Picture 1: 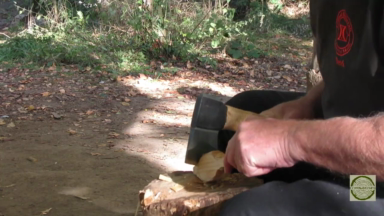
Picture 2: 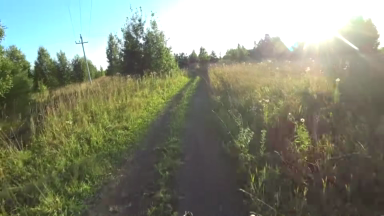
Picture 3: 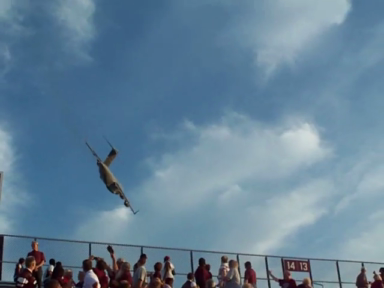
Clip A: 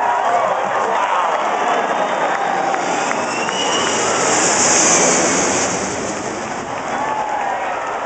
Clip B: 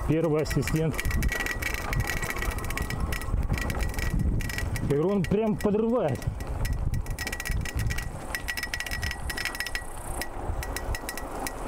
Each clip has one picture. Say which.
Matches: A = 3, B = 2